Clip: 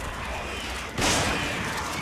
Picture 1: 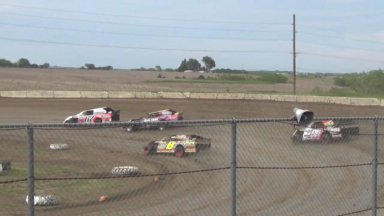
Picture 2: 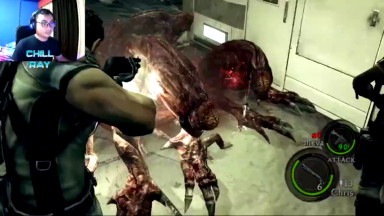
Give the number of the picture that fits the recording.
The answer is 2